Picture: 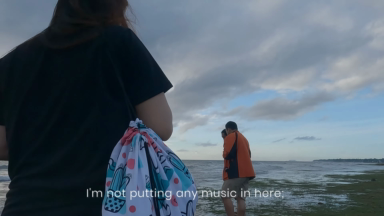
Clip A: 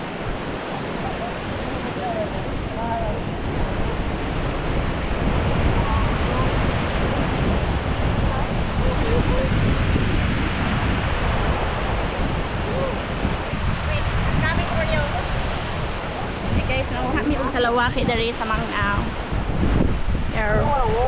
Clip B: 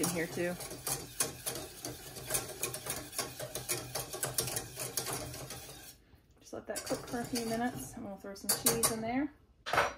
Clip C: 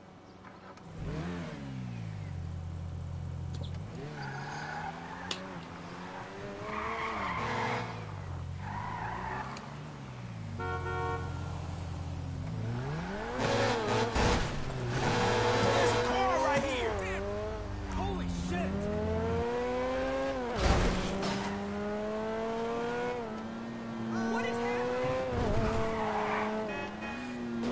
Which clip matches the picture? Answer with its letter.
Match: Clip A